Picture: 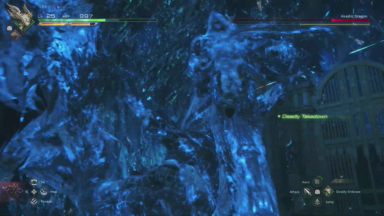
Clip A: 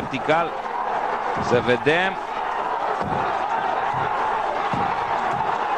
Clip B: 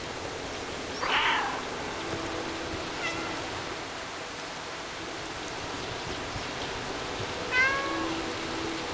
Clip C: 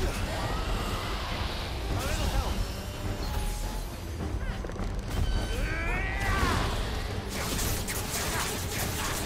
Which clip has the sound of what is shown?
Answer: C